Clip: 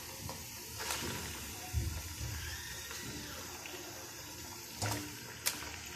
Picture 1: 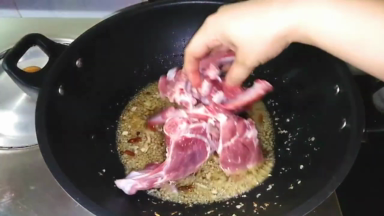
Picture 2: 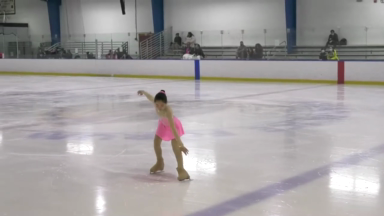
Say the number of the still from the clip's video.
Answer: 1